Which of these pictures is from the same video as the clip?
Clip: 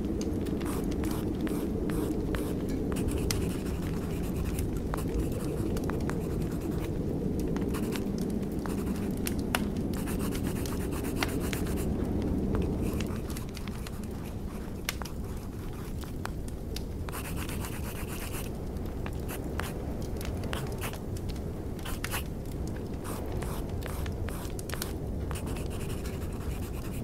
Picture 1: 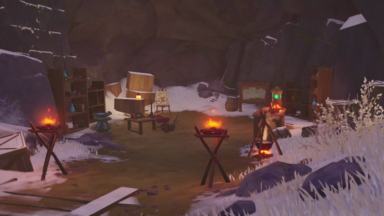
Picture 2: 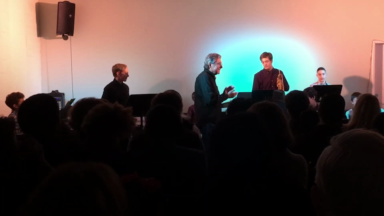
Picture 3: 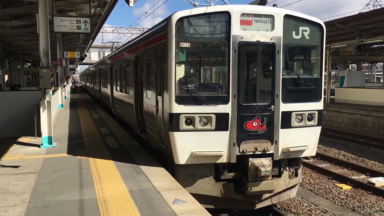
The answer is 1